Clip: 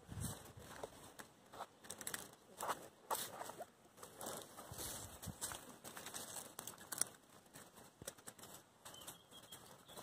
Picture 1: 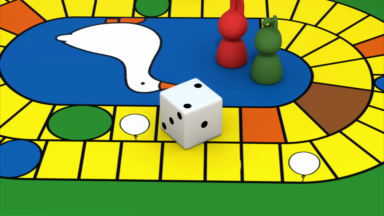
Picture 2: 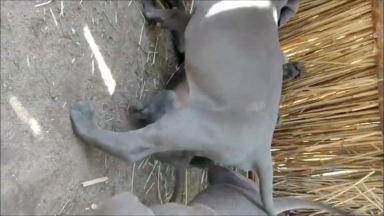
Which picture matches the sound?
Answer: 2